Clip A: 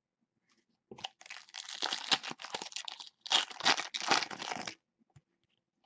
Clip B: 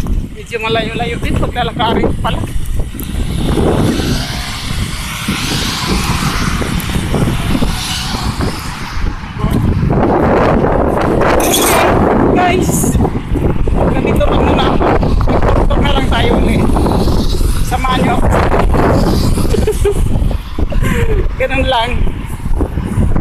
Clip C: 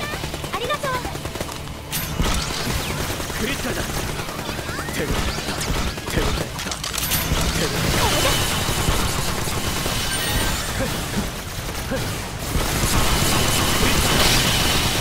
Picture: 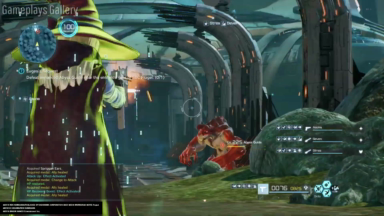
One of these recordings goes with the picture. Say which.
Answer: C